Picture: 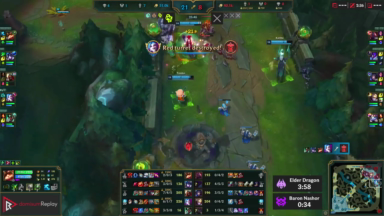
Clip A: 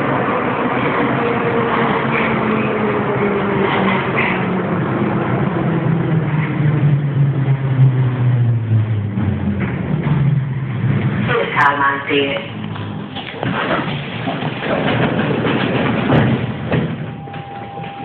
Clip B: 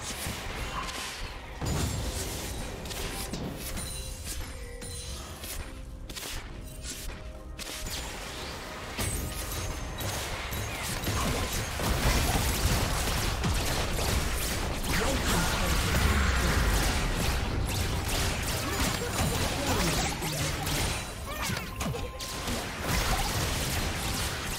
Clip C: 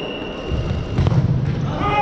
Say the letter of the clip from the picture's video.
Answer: B